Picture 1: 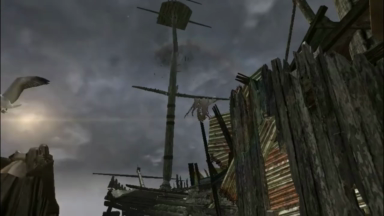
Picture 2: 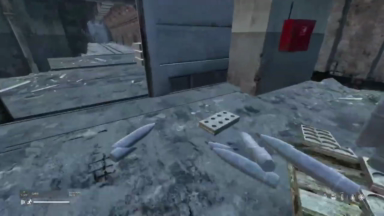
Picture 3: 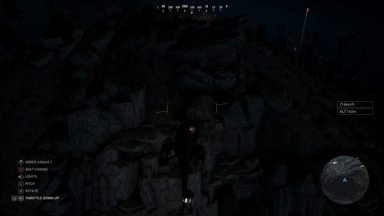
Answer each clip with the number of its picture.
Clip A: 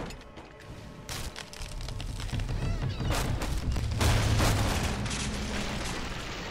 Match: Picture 1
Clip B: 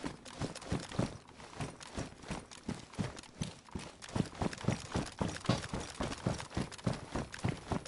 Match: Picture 2